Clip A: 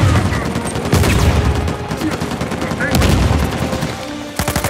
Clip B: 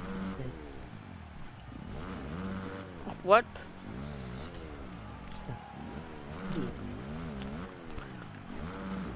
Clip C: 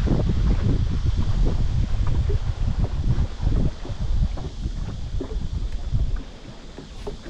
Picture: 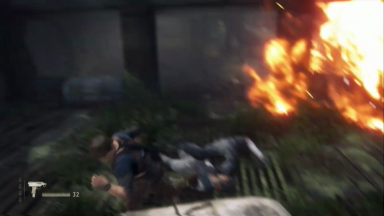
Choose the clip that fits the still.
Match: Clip A